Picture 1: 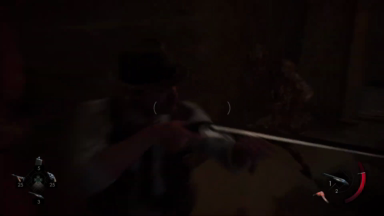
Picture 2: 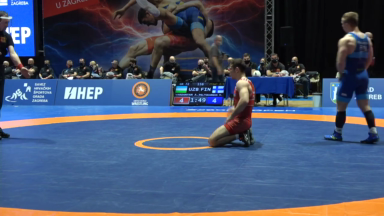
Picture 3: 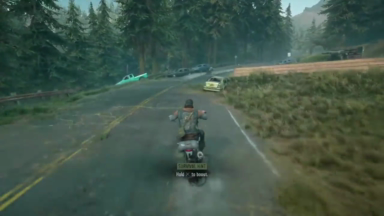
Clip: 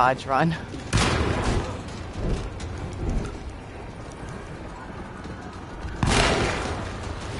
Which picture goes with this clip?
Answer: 1